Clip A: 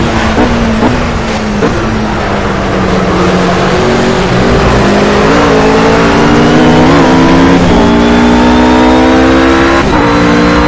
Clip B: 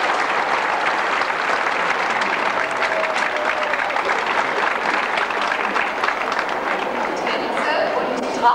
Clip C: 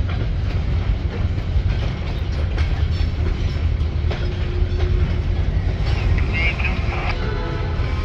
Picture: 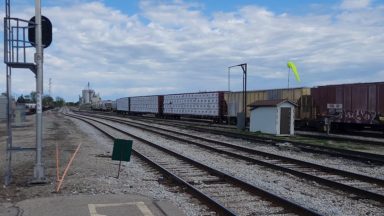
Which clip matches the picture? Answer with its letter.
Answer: C